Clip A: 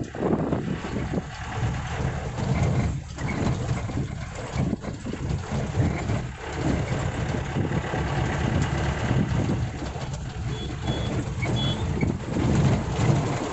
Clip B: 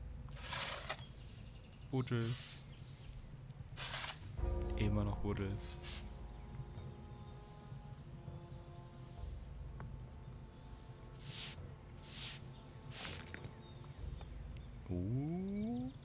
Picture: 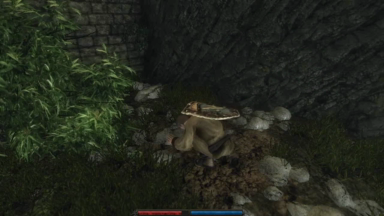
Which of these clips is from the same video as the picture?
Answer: B